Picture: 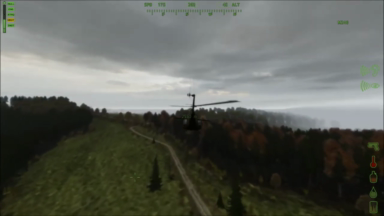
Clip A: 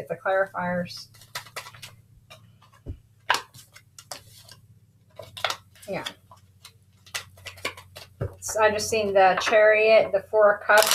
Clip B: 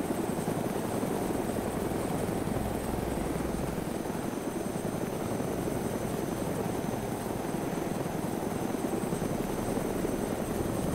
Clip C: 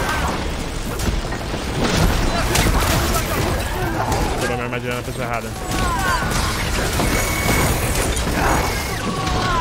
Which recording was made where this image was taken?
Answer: B